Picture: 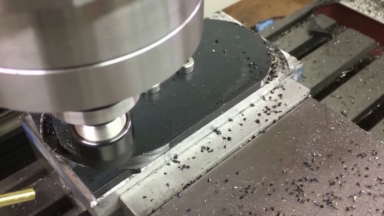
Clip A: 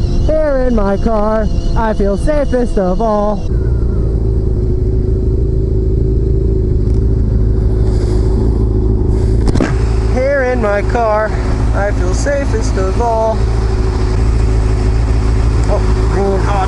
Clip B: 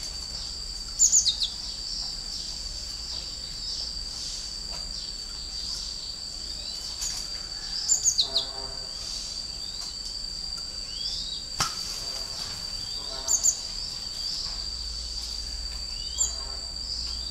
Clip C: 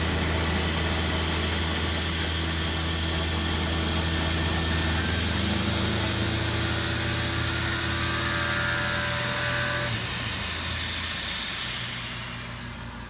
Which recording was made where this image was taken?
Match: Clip C